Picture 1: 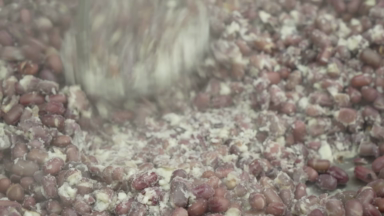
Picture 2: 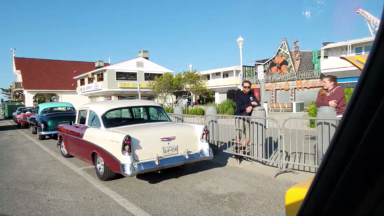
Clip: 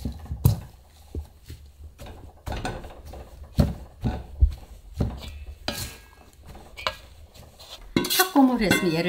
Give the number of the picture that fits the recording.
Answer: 1